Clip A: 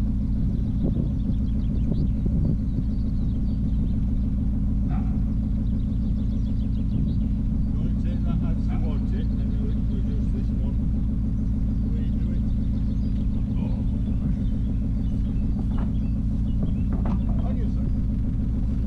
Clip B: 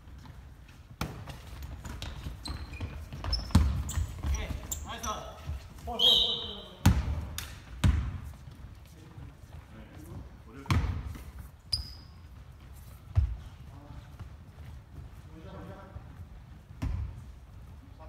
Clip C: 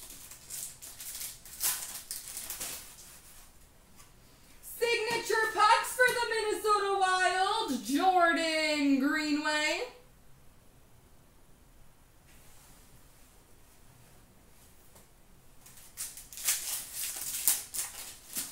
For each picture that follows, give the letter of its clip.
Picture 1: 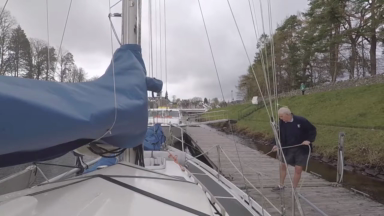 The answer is A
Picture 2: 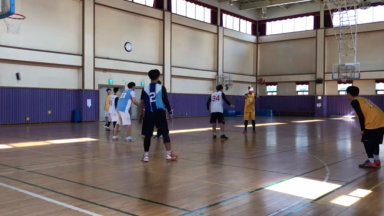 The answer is B